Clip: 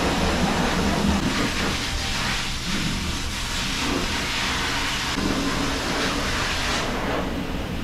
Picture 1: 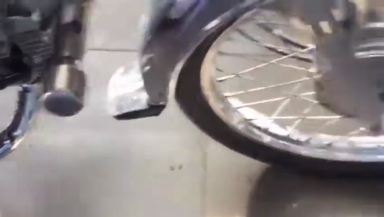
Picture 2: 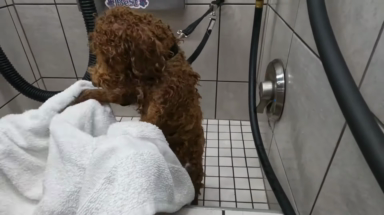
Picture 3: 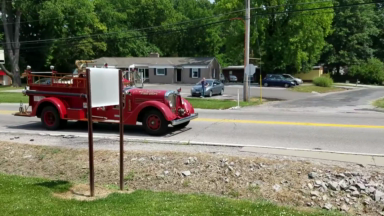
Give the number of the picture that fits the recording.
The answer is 2